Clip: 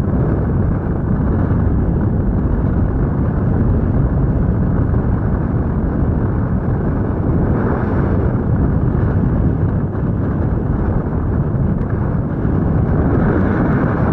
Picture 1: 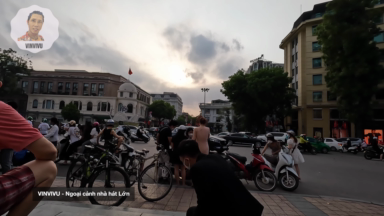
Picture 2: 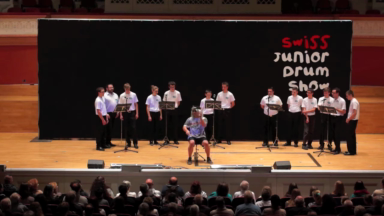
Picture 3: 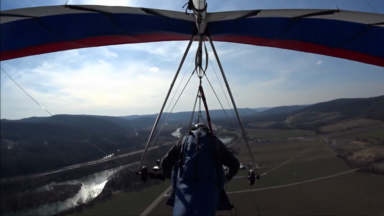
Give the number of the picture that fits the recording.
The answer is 3